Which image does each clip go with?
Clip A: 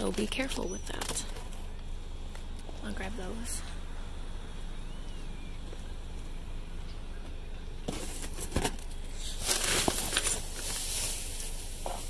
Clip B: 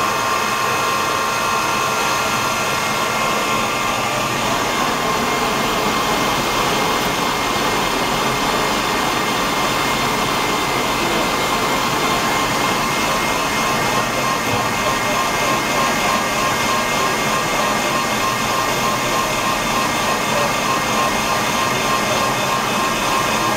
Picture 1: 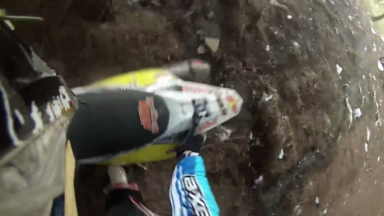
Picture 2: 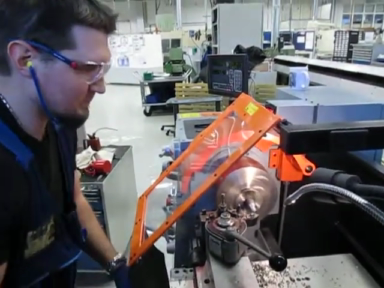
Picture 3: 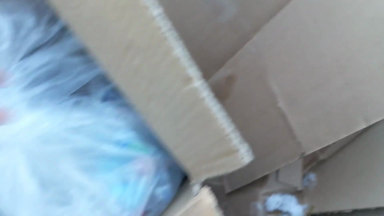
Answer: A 3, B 2